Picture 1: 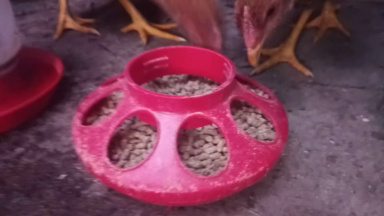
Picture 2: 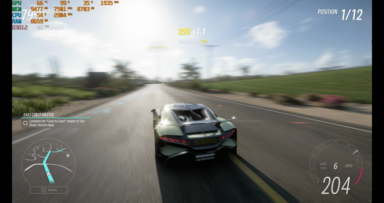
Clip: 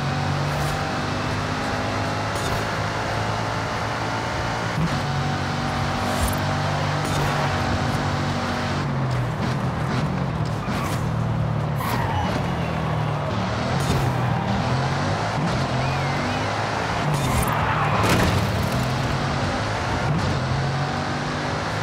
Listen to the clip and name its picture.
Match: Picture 2